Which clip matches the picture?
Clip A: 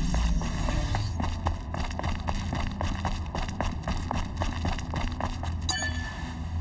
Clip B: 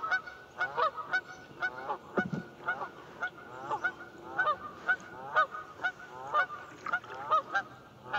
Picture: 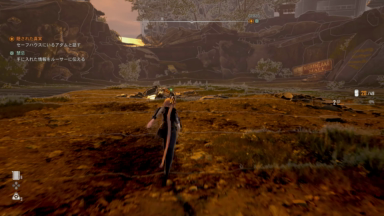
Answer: A